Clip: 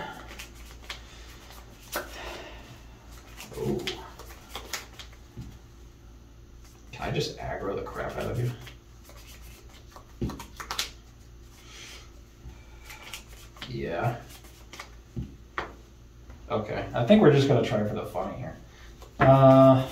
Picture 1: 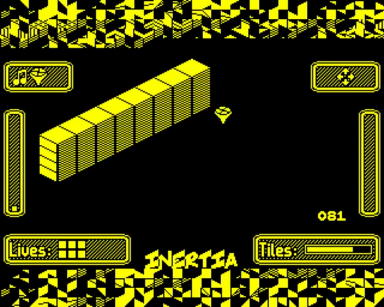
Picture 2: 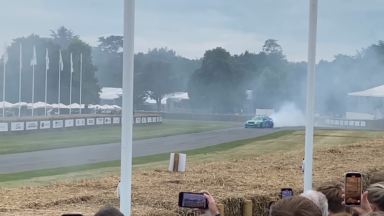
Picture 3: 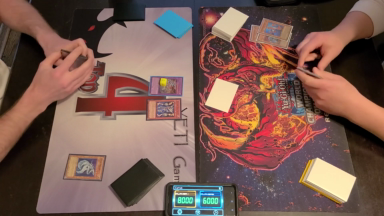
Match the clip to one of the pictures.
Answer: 3